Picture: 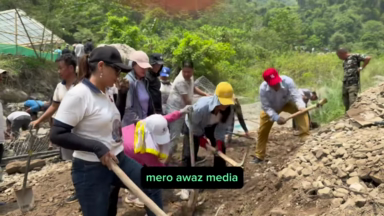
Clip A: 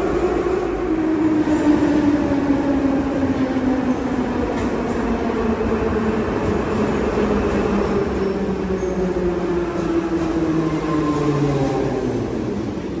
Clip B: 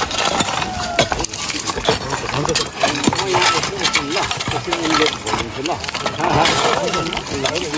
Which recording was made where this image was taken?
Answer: B